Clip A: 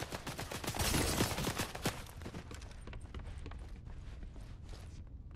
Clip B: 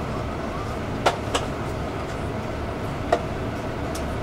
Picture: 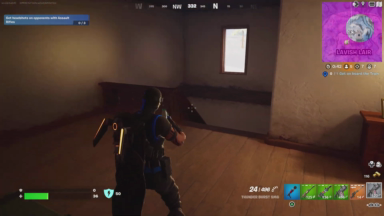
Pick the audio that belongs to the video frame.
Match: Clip A